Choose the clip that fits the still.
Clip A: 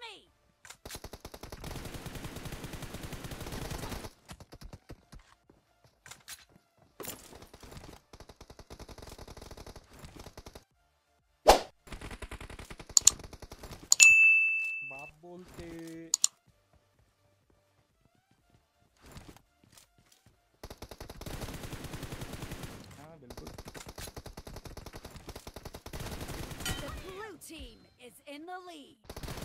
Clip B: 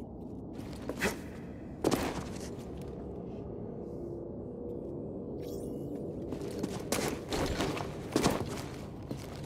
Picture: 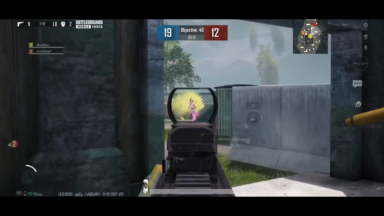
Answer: A